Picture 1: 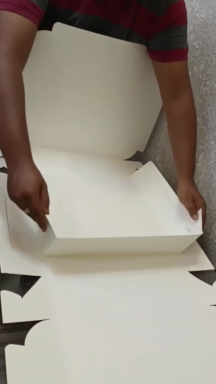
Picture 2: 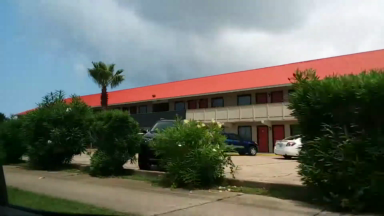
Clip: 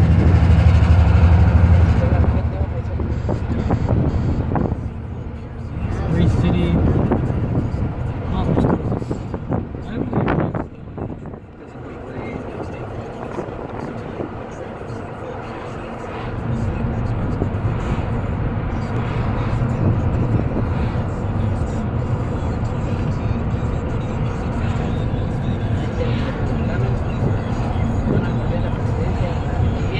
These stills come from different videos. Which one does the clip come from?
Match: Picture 2